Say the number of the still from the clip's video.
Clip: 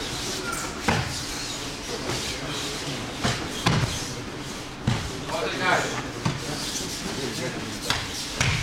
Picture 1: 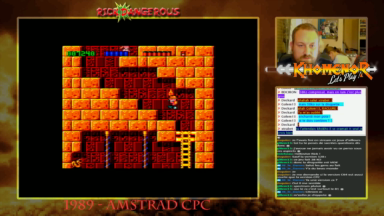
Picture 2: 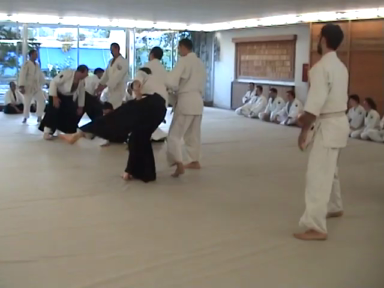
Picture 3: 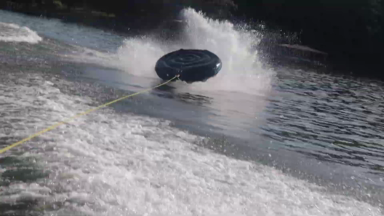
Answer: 2